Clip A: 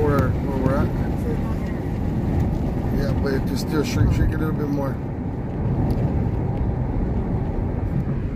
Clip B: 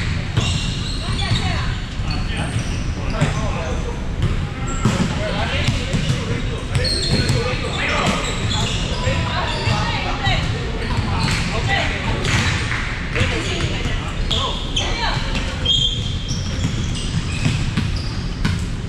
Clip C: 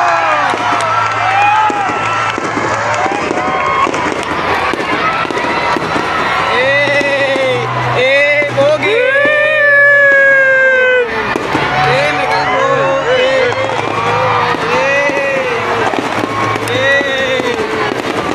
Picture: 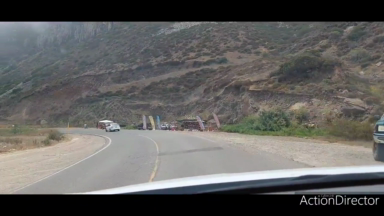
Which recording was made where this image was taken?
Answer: A